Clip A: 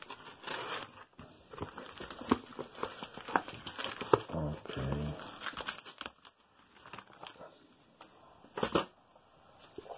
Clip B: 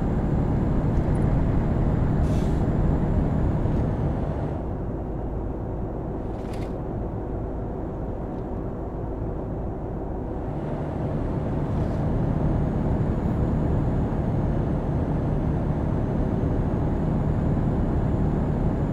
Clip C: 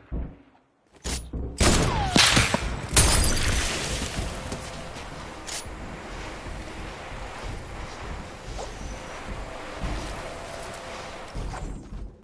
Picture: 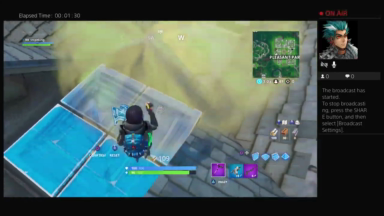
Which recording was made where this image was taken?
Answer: C